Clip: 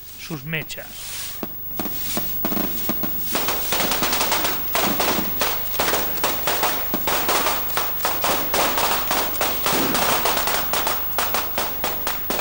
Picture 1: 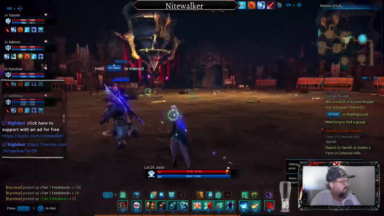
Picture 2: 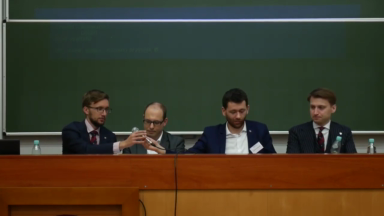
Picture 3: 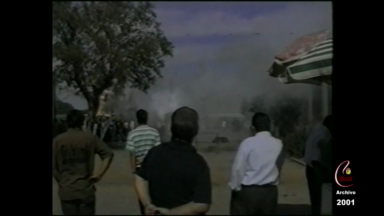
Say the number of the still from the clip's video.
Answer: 3